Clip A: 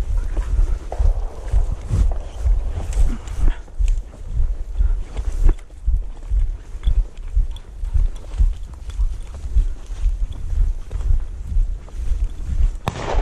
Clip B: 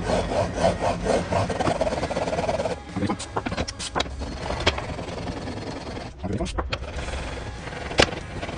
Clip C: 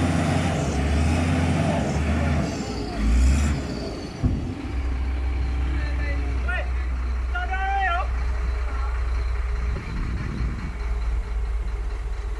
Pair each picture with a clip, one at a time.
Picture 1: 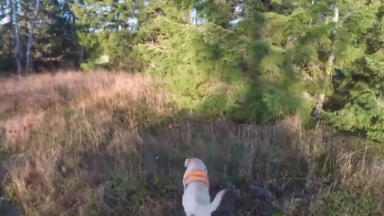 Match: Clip A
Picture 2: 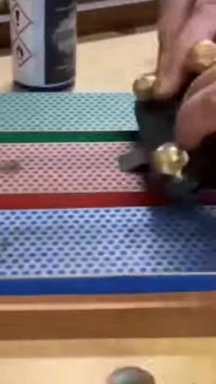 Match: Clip B